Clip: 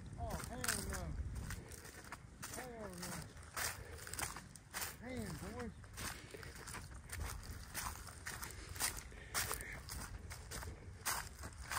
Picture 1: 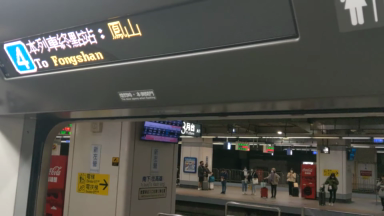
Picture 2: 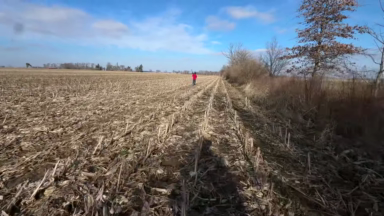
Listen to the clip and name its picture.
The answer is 2